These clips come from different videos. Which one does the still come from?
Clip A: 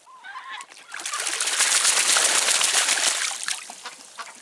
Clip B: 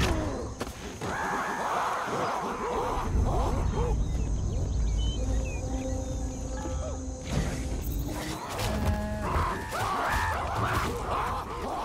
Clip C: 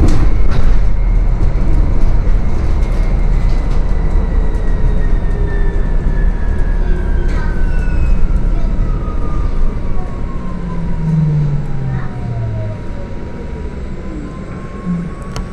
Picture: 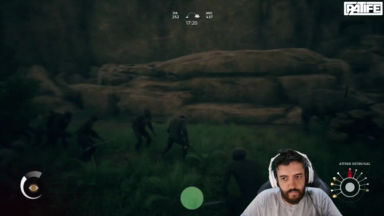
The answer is B